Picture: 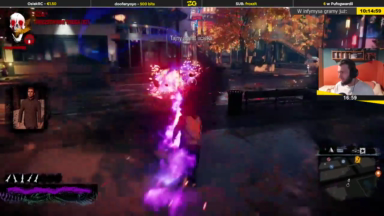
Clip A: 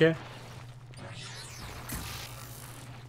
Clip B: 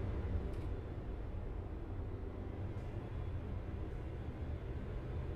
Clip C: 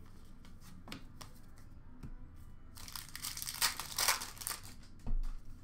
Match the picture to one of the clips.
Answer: A